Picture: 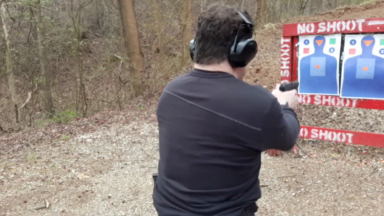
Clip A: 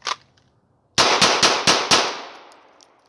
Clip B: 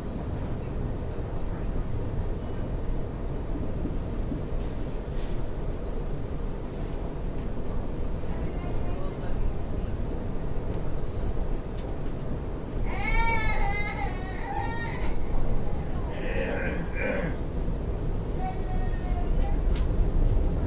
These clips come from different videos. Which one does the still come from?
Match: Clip A